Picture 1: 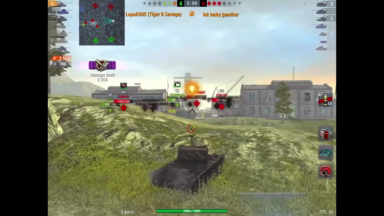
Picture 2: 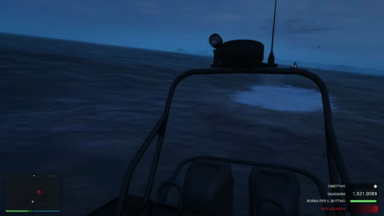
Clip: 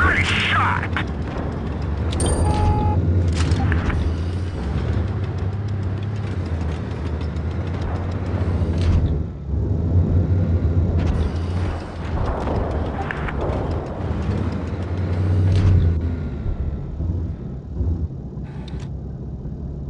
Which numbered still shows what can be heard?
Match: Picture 1